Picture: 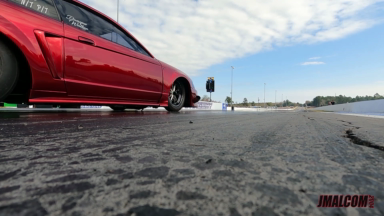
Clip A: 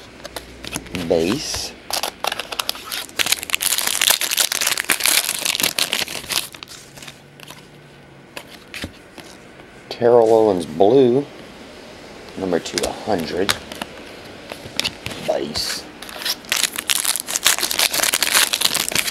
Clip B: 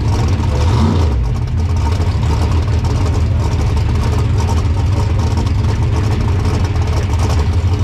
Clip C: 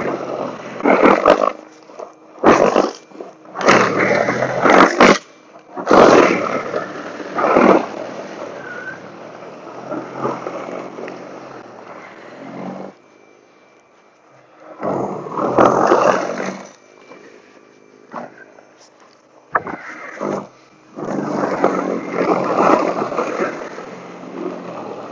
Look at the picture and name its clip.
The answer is B